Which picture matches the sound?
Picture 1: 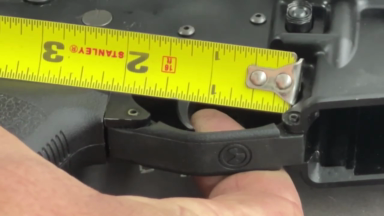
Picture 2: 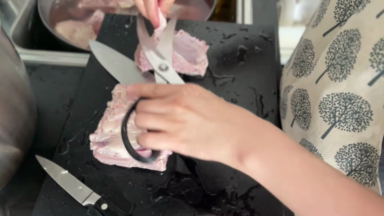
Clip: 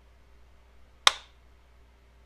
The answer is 1